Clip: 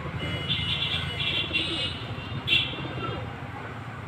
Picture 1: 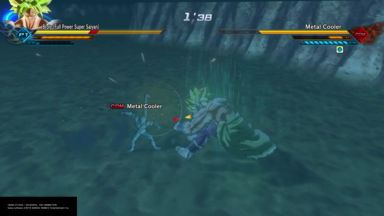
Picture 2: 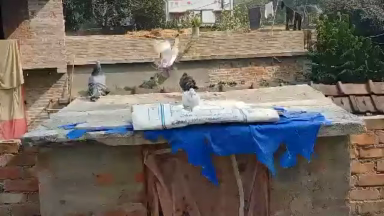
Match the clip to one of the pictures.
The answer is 2